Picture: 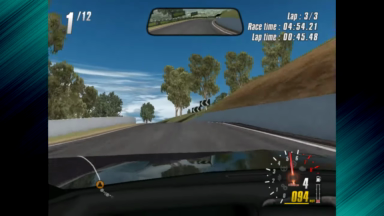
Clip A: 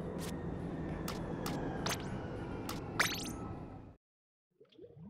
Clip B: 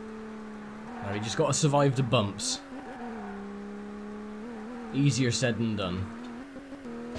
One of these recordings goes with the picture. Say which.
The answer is B